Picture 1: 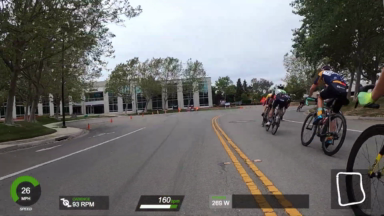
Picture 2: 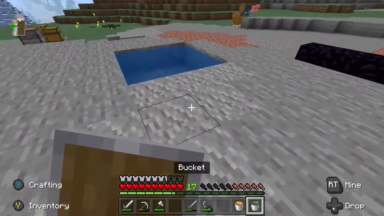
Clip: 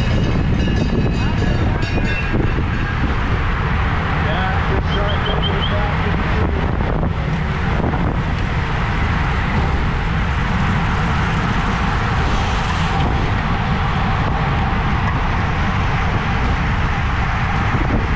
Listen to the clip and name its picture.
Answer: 1